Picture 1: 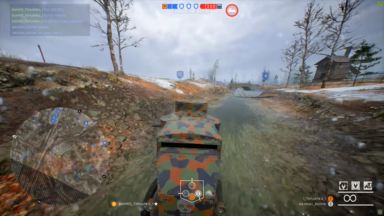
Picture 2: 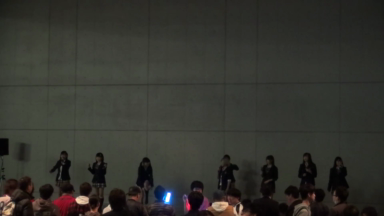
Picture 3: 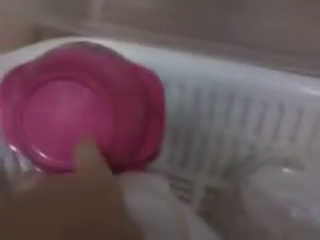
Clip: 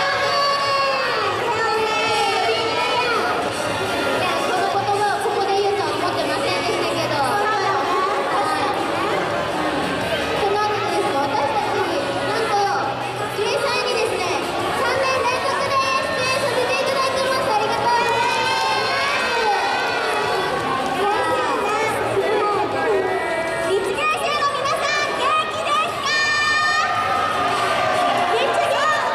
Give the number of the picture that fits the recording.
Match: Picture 2